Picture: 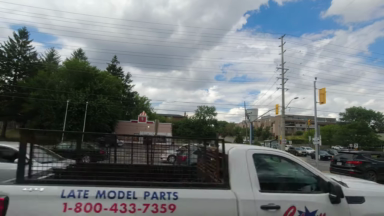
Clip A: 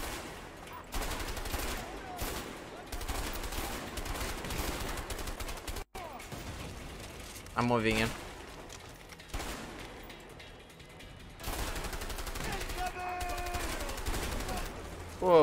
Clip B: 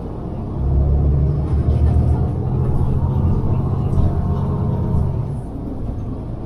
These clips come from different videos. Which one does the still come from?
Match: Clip B